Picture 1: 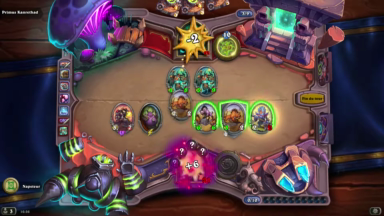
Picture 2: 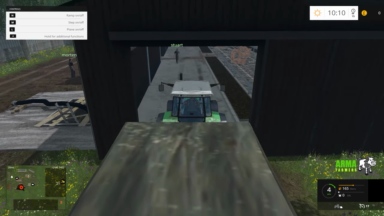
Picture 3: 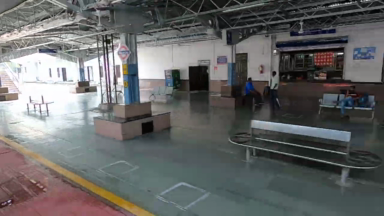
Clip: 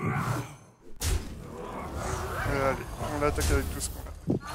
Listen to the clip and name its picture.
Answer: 1